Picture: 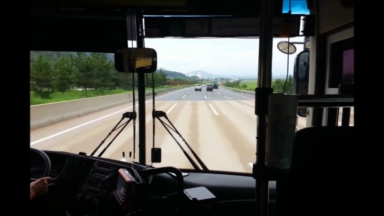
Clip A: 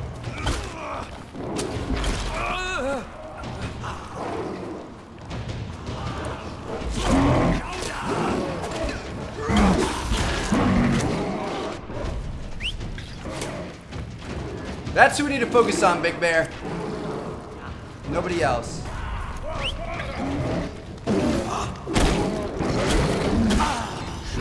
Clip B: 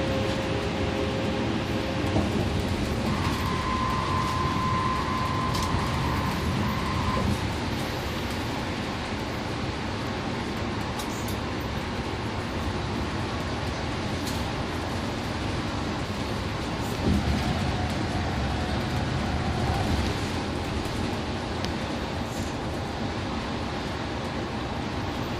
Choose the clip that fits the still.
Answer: B